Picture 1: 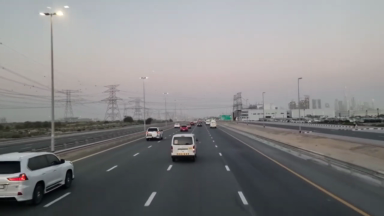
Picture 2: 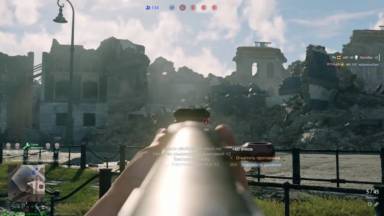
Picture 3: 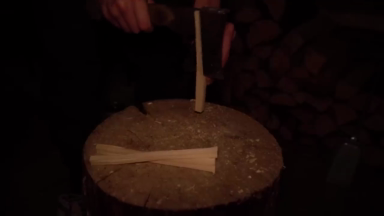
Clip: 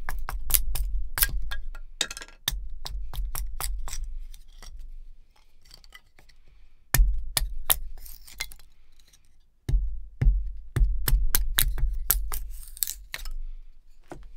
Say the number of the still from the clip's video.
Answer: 3